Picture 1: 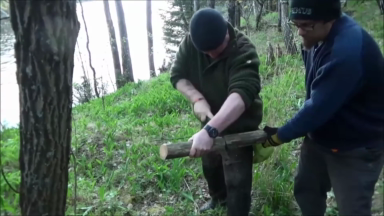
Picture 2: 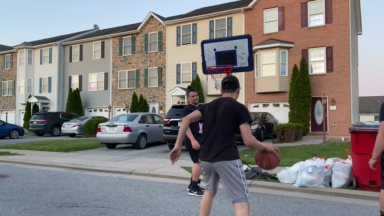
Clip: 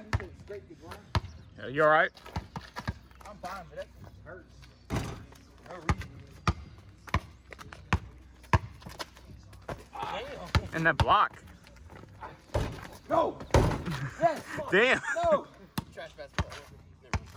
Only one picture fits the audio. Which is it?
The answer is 2